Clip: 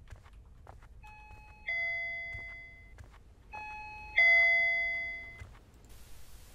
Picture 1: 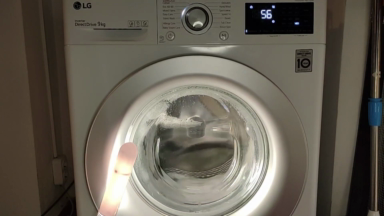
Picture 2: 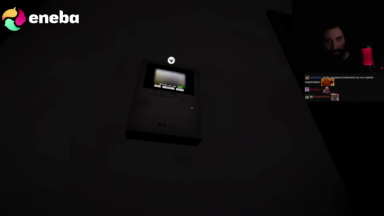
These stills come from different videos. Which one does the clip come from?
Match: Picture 2